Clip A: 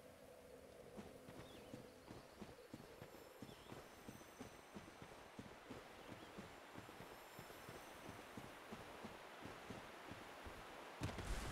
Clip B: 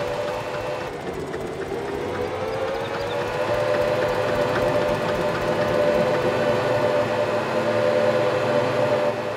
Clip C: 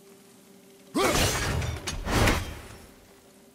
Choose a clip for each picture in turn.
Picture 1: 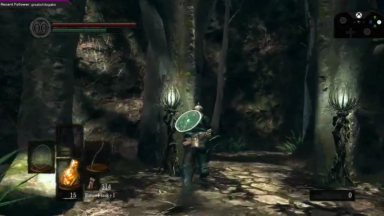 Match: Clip A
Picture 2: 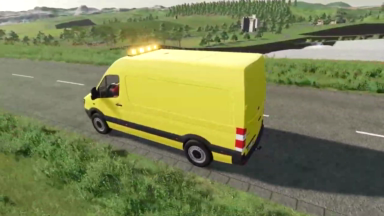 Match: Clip B